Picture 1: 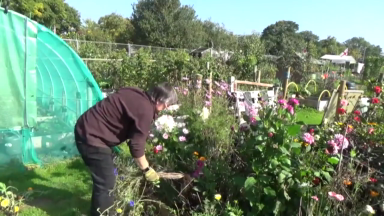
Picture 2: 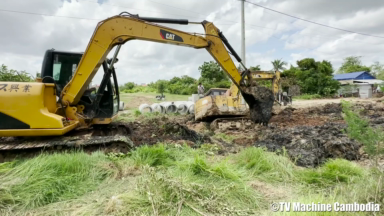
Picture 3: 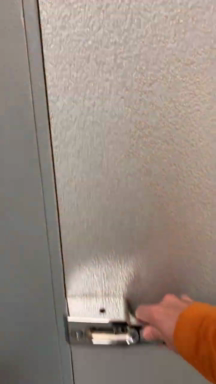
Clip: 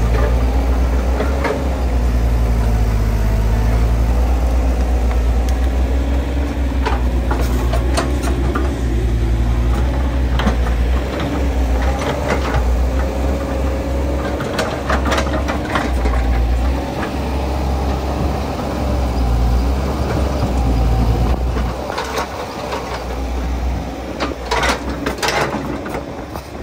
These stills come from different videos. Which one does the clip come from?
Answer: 2